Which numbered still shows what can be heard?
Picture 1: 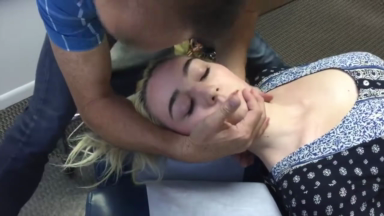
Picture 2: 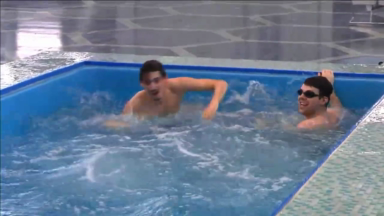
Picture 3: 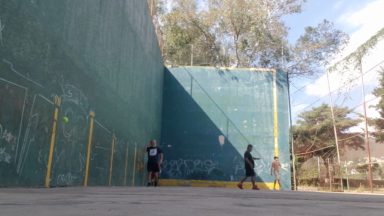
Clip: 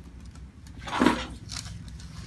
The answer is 1